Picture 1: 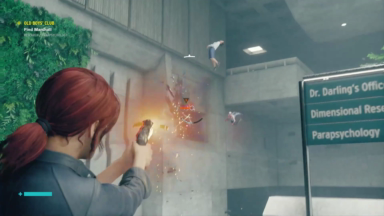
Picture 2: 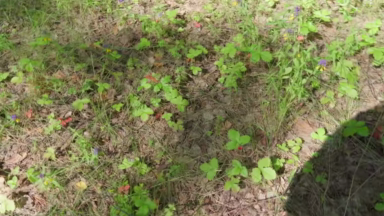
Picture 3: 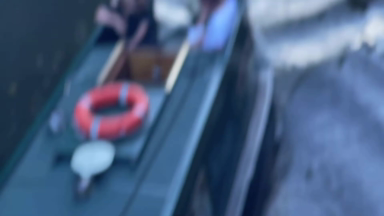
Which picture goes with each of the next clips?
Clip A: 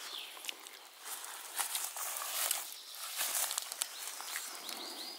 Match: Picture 2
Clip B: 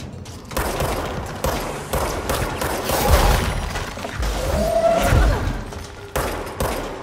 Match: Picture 1